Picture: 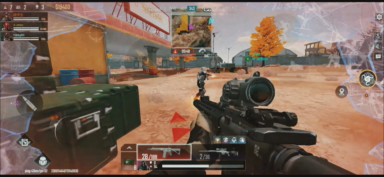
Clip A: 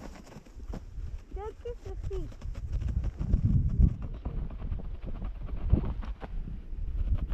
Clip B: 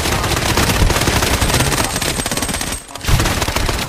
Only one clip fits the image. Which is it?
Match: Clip B